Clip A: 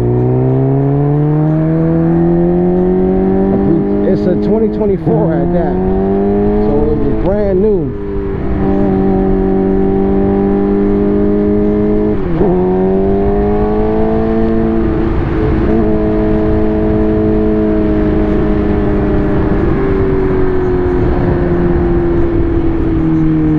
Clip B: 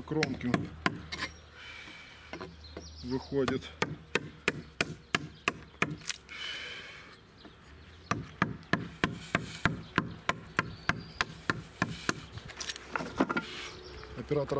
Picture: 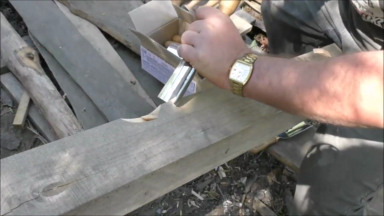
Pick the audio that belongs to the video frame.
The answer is B